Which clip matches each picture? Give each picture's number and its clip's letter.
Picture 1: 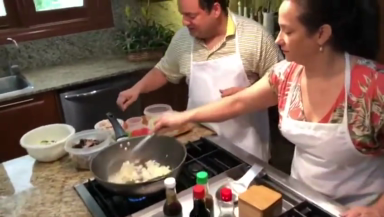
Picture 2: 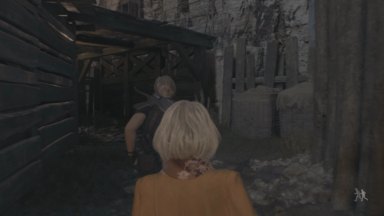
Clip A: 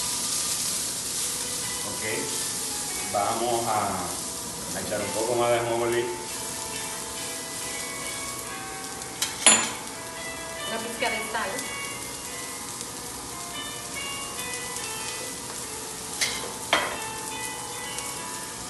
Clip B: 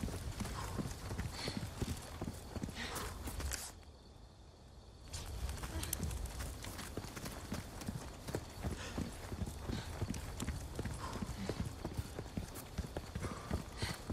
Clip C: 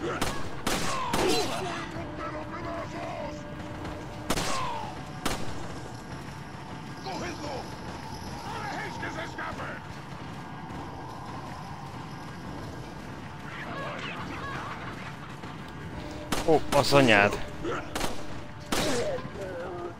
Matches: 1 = A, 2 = B